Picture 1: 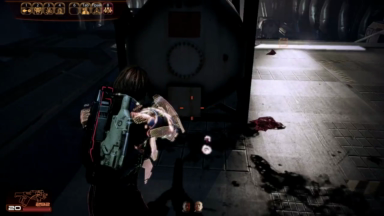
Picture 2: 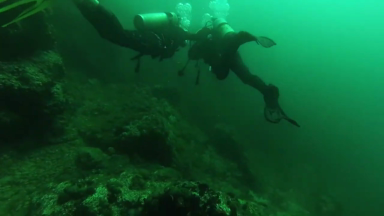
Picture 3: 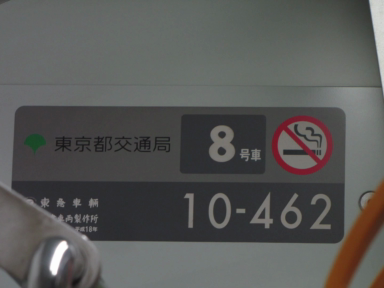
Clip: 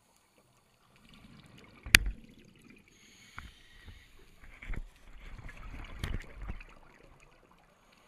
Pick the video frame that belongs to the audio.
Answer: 2